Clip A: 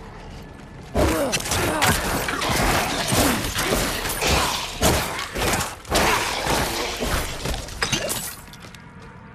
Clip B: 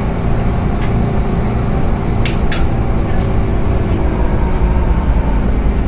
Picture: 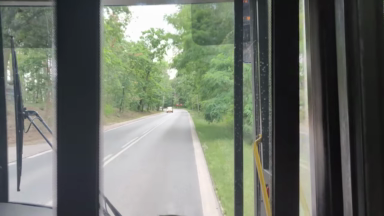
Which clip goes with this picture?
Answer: B